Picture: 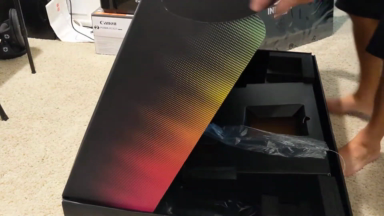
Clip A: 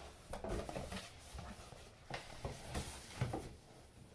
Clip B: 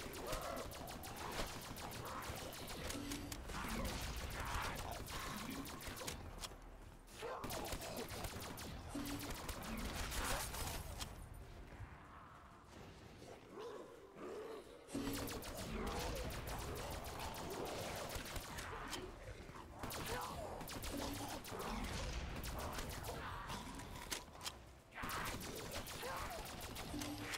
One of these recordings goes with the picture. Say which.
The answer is A